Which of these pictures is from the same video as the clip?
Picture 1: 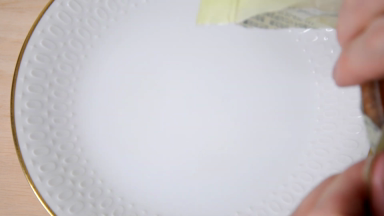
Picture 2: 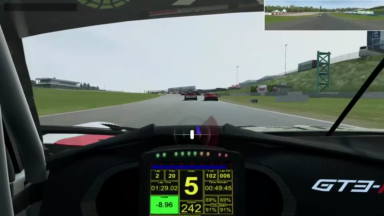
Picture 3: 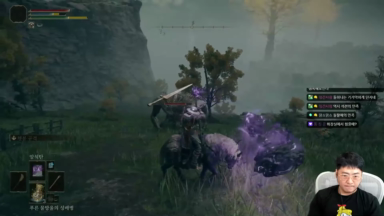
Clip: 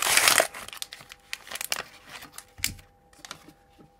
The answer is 1